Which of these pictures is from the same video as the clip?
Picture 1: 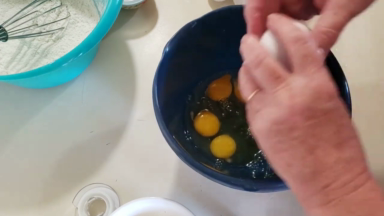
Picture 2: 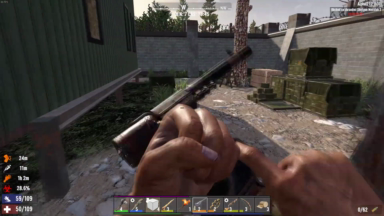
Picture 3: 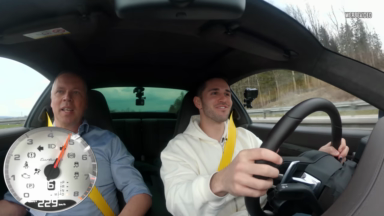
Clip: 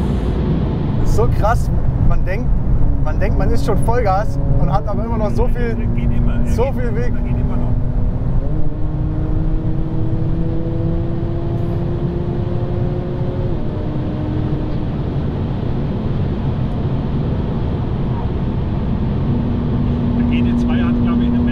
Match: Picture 3